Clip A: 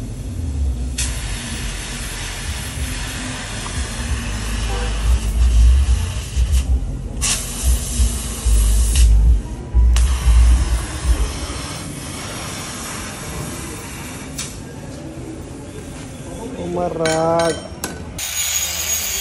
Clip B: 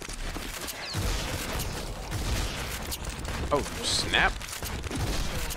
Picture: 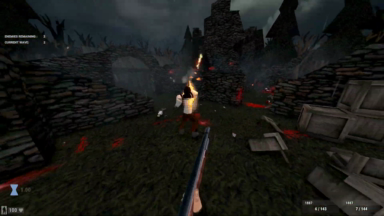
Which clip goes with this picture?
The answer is B